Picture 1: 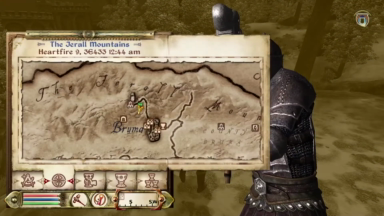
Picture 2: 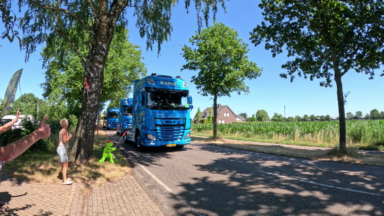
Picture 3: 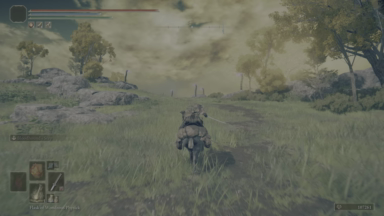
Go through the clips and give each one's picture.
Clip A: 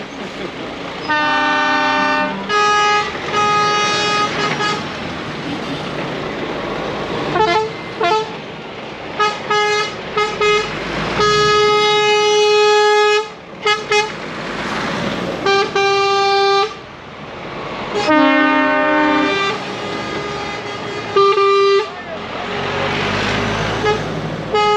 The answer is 2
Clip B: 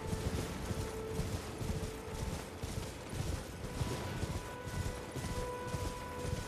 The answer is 3